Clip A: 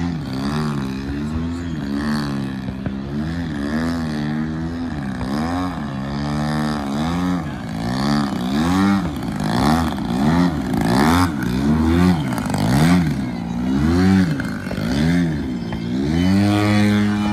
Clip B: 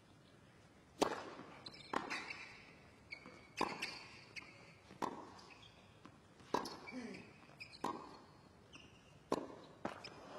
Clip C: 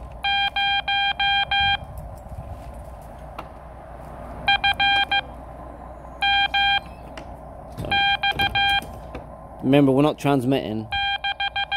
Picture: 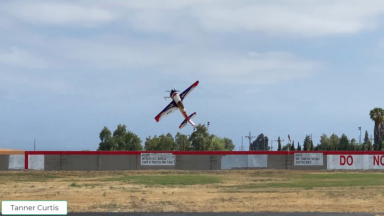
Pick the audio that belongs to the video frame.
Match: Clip A